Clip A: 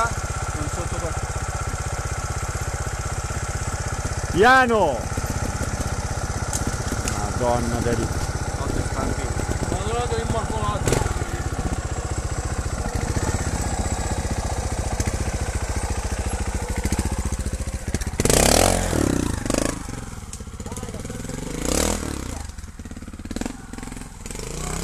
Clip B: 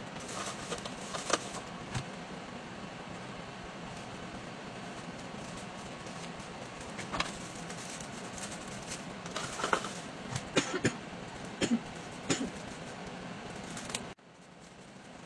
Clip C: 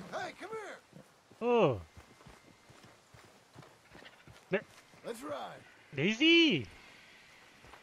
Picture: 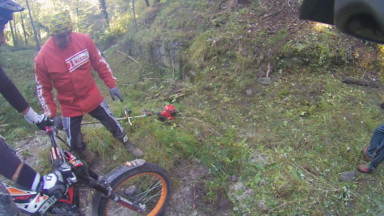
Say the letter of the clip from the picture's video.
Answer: A